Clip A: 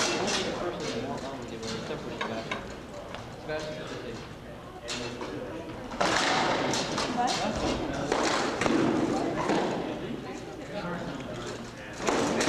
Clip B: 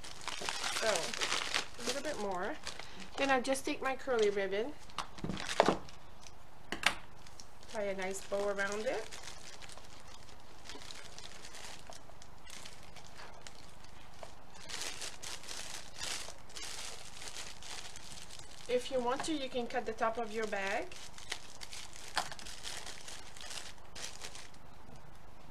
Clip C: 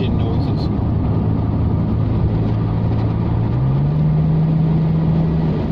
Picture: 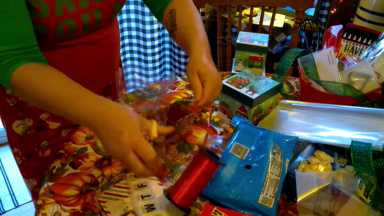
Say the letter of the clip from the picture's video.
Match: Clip B